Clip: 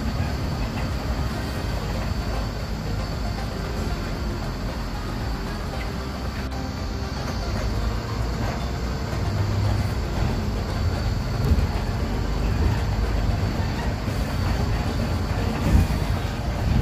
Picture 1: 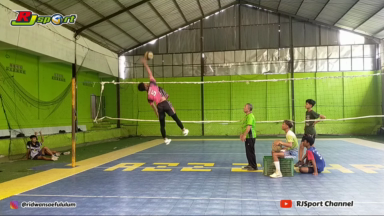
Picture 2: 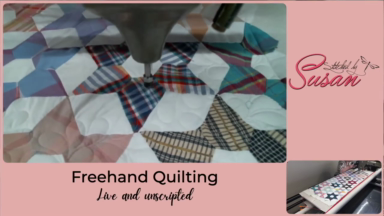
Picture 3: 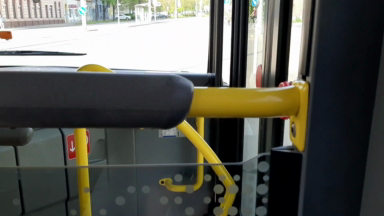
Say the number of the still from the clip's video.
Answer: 3